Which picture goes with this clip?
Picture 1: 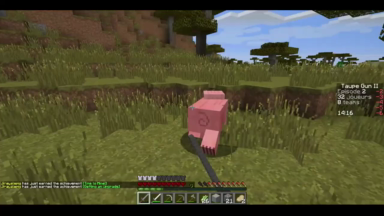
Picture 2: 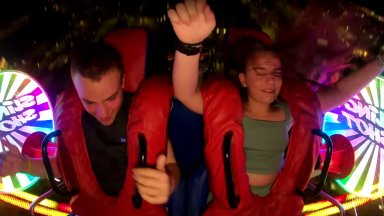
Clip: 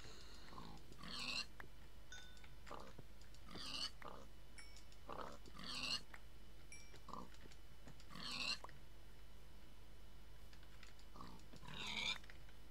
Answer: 1